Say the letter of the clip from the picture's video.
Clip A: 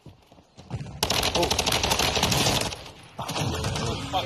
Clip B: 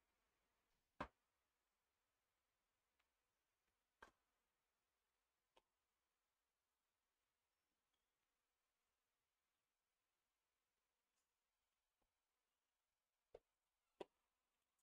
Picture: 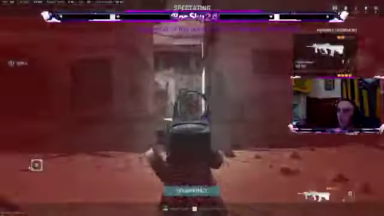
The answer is A